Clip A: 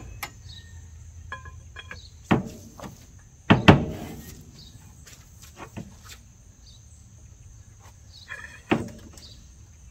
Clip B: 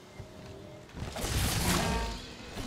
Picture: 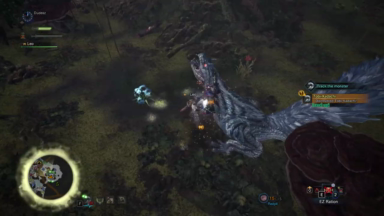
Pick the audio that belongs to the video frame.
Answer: B